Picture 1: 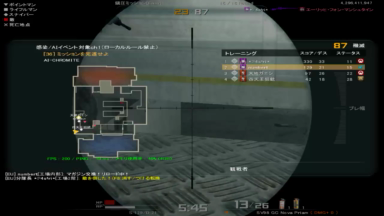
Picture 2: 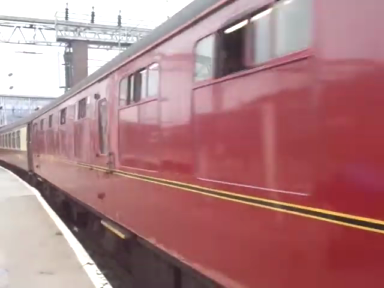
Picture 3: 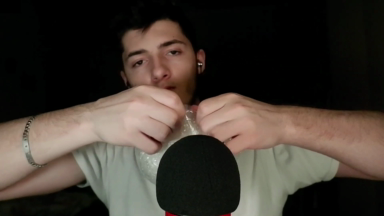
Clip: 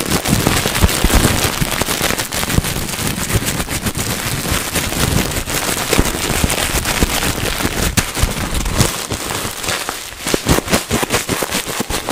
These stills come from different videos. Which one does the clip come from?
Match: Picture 3